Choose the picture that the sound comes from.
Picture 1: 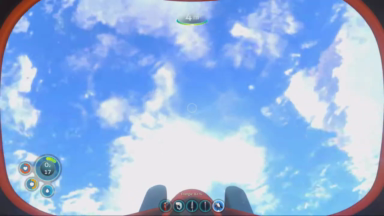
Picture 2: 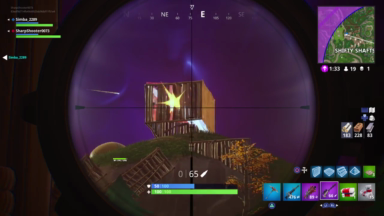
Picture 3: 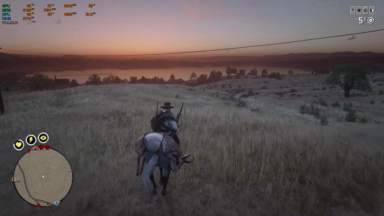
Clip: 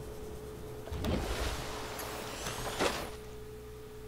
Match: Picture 1